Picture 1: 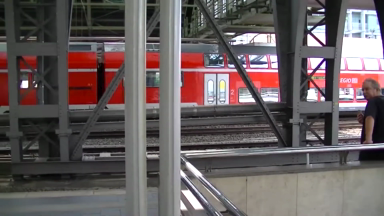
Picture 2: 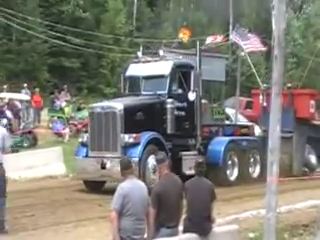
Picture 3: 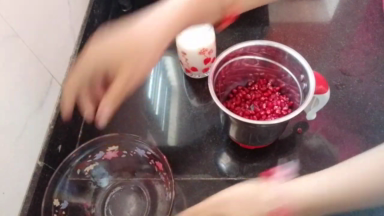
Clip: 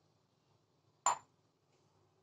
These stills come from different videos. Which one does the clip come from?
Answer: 3